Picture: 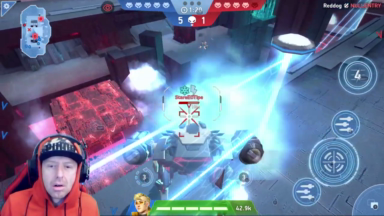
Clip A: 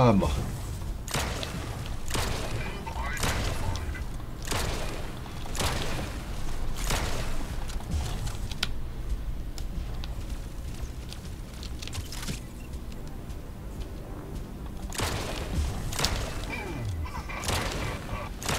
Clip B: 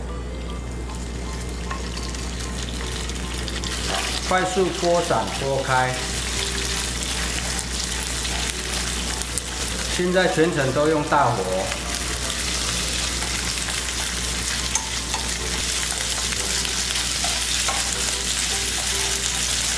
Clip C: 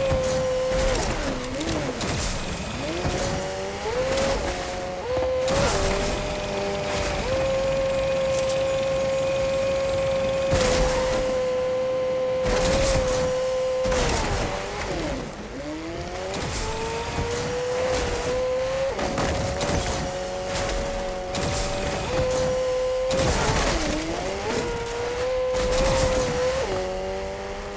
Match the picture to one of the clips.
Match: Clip A